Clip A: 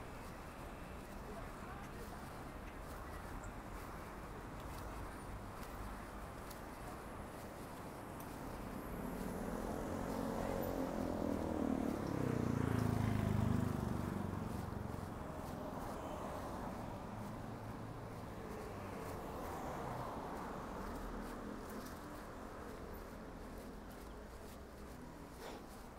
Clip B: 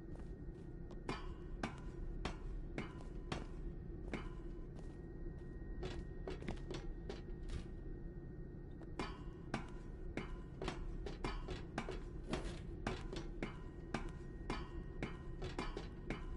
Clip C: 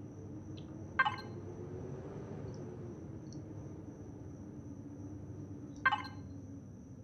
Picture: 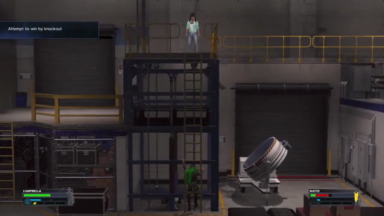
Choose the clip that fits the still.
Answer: B